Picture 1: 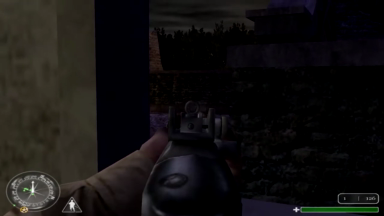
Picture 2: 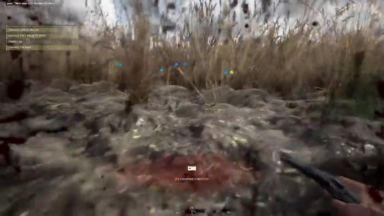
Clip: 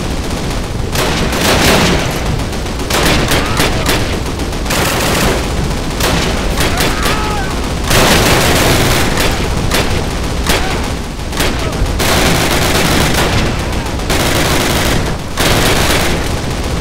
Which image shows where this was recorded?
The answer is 1